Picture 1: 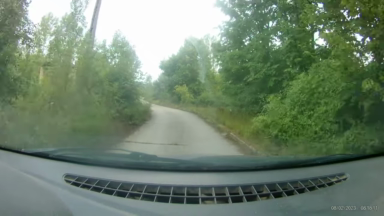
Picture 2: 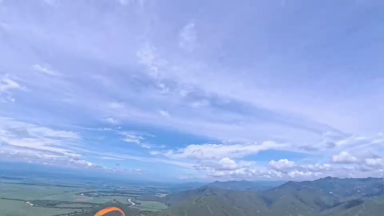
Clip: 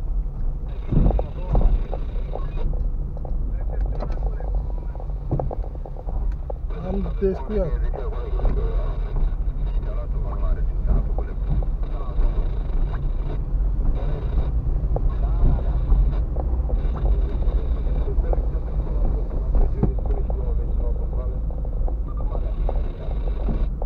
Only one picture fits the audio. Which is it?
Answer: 1